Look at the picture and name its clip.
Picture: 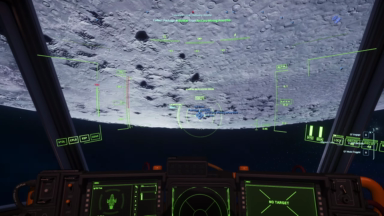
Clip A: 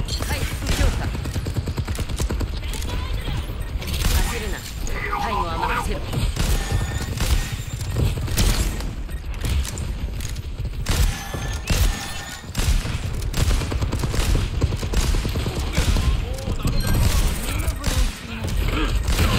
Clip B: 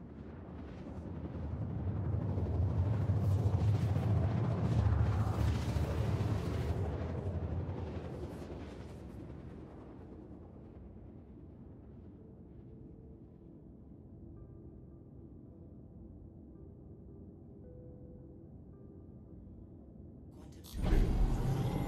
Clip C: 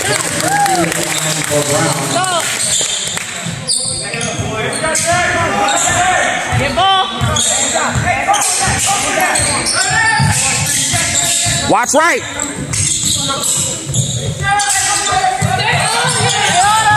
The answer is B